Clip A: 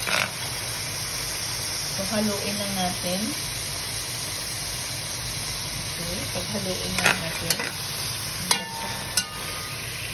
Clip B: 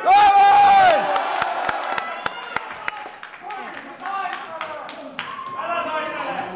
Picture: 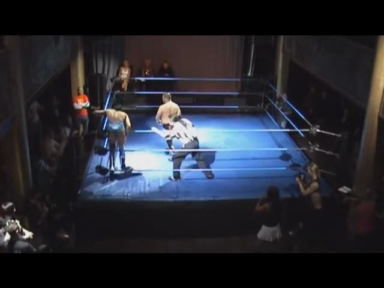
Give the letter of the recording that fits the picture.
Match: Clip B